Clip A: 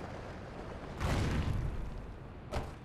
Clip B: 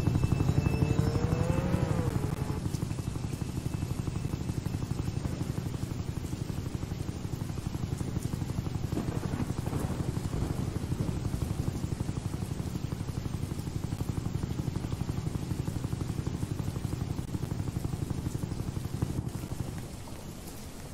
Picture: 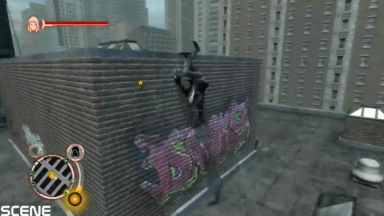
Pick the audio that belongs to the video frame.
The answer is A